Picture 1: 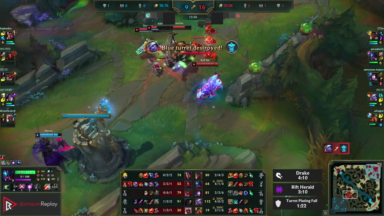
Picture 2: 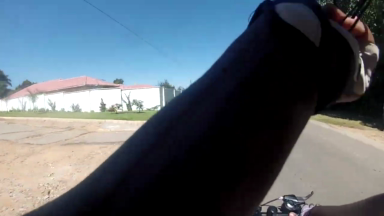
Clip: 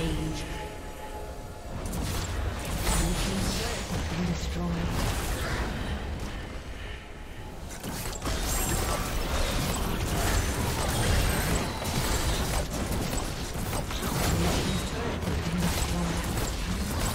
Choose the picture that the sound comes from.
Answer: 1